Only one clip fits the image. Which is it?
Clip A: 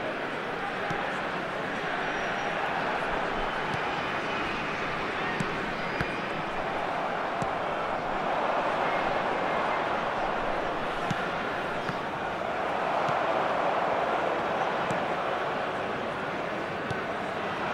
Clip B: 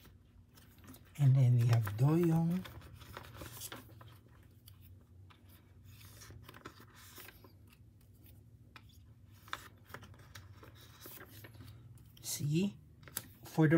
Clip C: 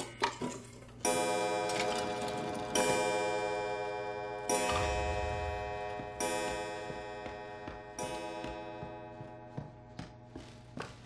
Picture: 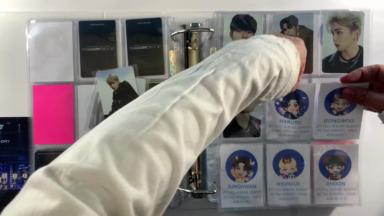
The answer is B